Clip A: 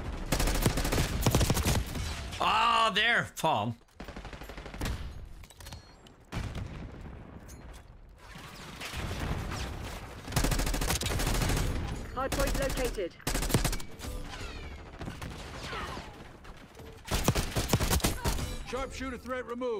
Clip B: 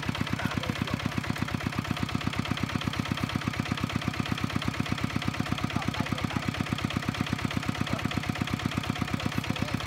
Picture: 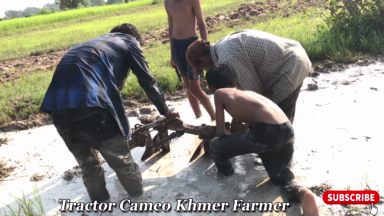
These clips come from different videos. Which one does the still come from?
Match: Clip B